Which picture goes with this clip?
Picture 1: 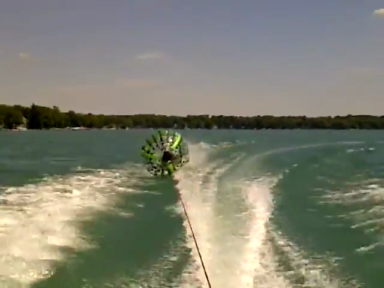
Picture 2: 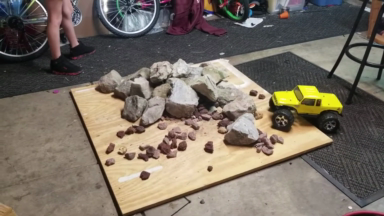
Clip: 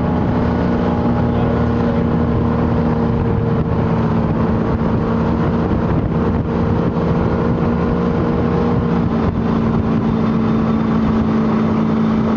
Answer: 1